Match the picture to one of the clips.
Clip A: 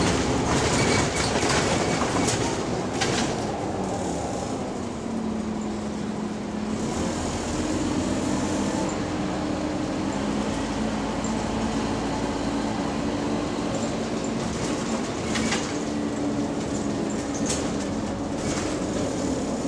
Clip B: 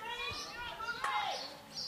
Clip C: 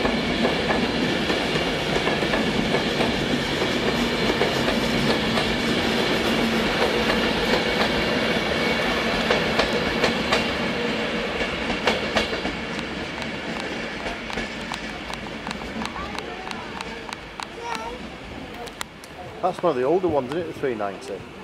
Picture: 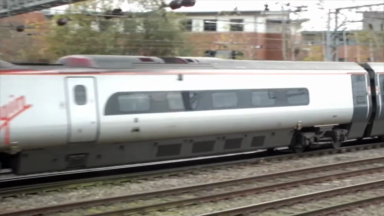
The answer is C